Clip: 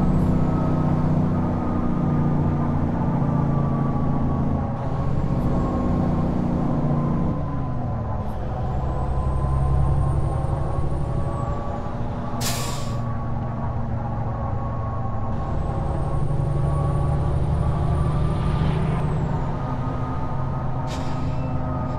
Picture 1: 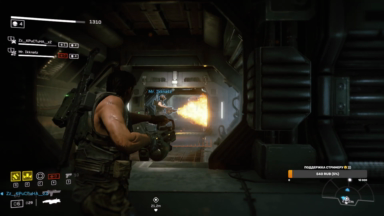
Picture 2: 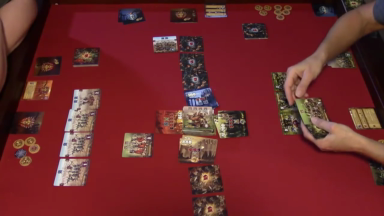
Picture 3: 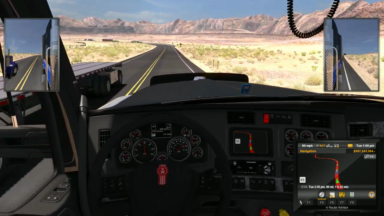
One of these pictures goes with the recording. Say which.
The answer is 3